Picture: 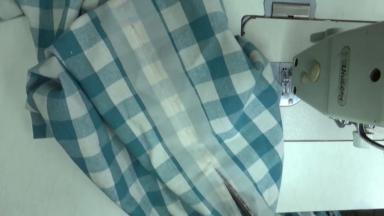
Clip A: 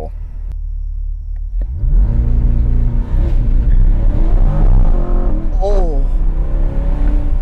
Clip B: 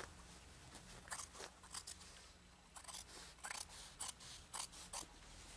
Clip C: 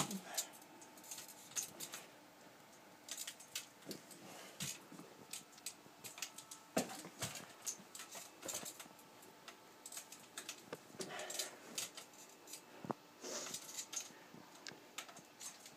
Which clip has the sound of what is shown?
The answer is B